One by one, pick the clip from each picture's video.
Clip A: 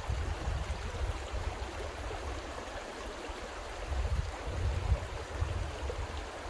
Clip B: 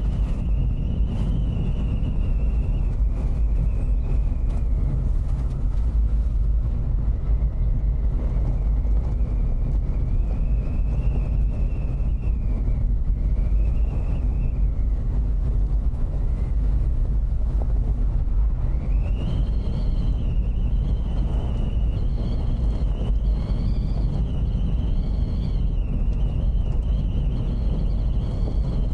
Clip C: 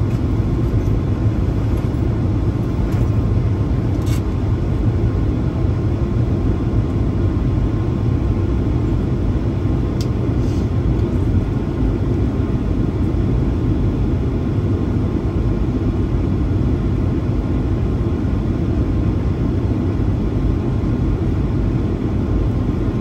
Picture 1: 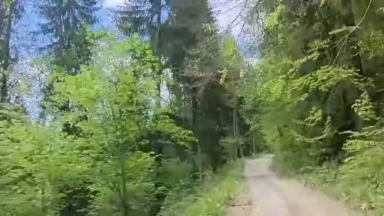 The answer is B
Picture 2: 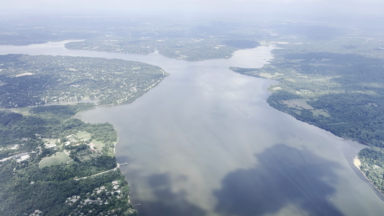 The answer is C